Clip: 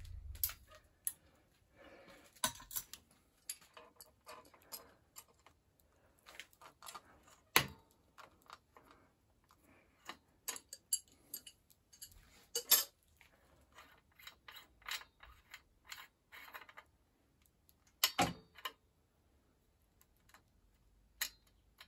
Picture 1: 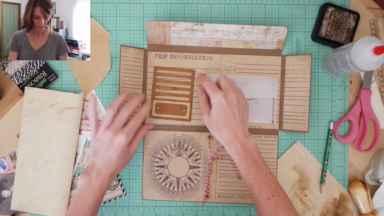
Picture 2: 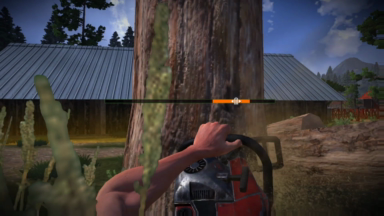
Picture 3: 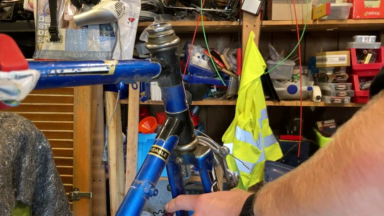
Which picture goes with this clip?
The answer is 3